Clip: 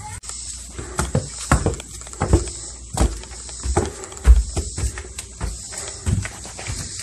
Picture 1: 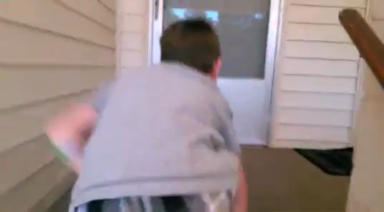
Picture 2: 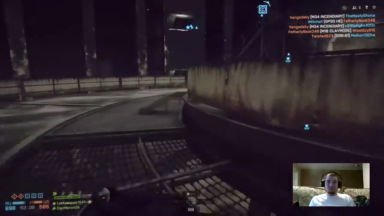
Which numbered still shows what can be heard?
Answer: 1